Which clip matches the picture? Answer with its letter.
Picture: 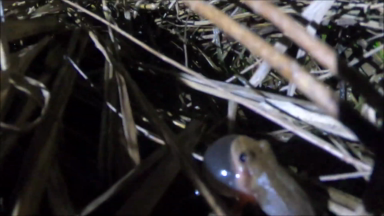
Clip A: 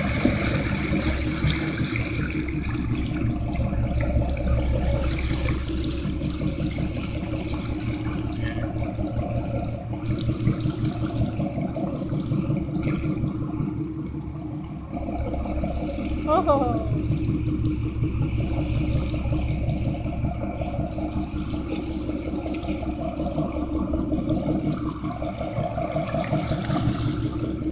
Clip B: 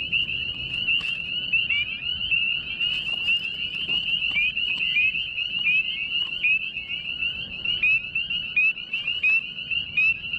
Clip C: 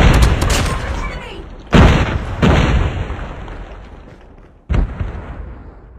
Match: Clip B